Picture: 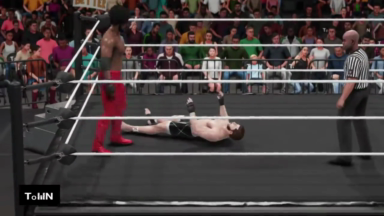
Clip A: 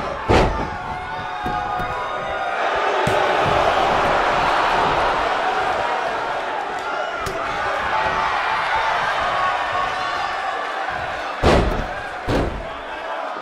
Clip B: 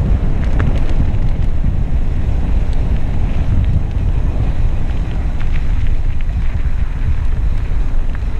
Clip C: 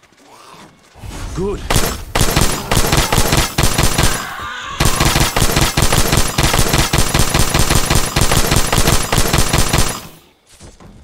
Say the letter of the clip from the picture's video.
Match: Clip A